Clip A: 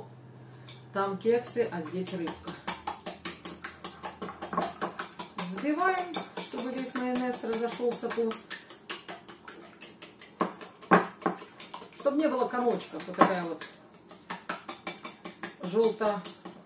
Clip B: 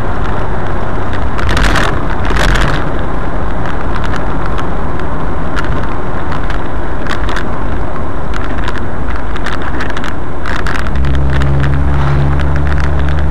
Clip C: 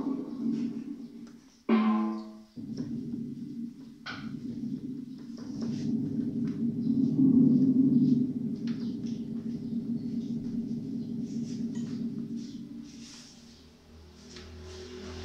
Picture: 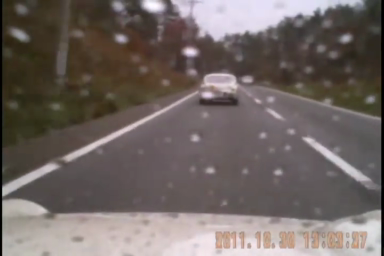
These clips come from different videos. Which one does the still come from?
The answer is B